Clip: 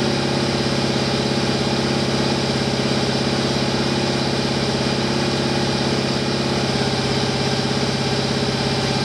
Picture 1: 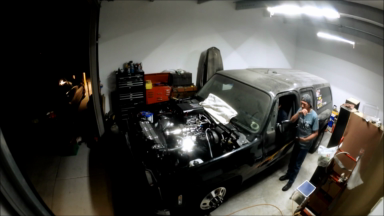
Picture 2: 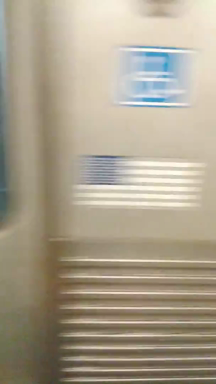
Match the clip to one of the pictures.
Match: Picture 1